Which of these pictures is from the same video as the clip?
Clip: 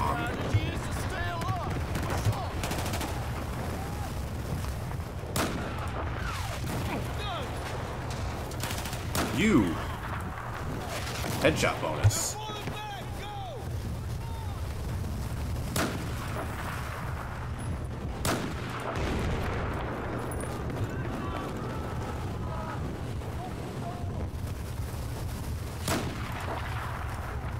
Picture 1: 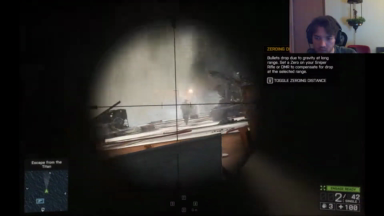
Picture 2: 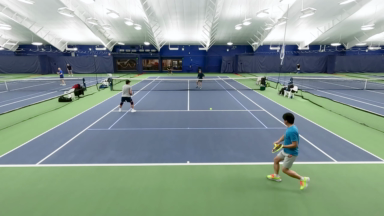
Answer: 1